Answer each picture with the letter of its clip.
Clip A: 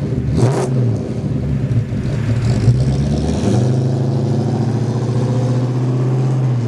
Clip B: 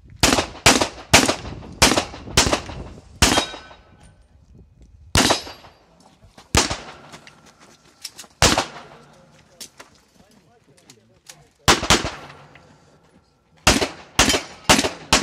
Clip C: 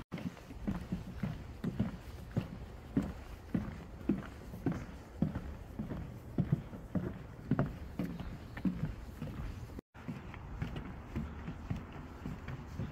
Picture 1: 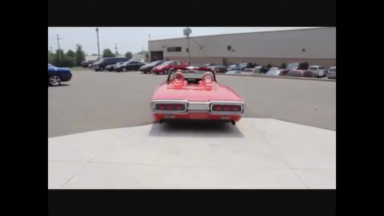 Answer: A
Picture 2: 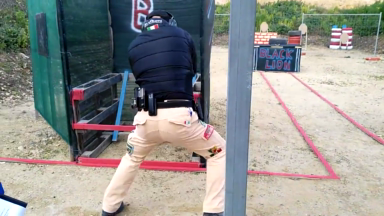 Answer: B